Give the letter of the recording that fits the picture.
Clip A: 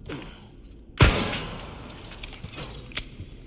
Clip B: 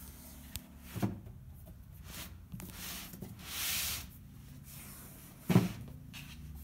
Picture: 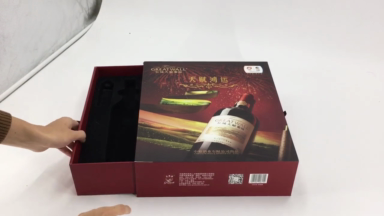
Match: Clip B